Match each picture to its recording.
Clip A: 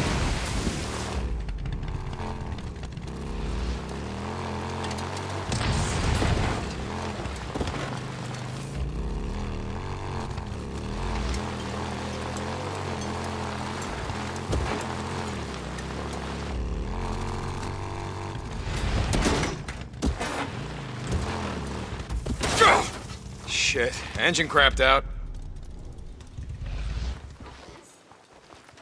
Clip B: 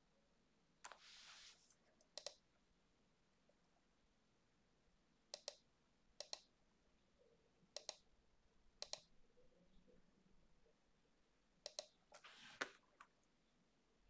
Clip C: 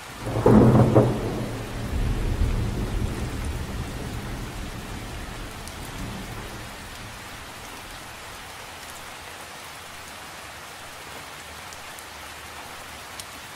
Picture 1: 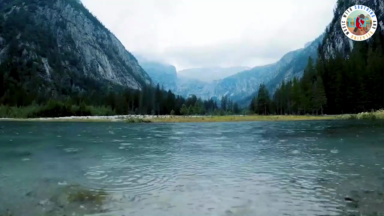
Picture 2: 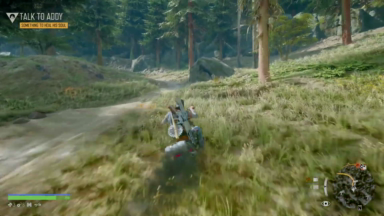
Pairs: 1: C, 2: A